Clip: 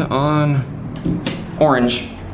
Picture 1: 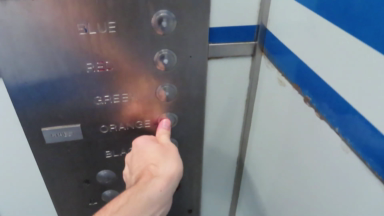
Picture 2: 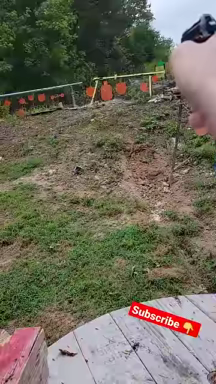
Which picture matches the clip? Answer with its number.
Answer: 1